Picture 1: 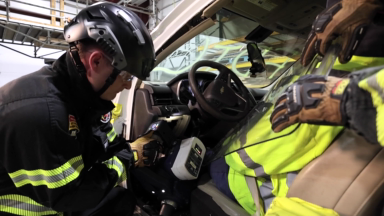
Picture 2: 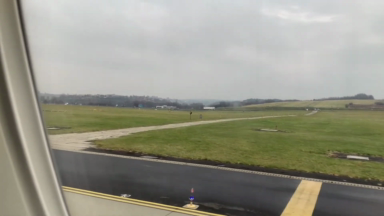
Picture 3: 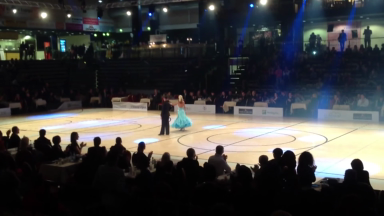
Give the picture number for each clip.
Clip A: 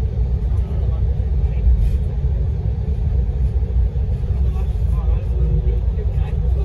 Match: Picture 2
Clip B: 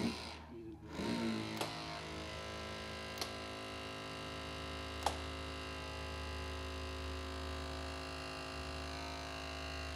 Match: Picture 1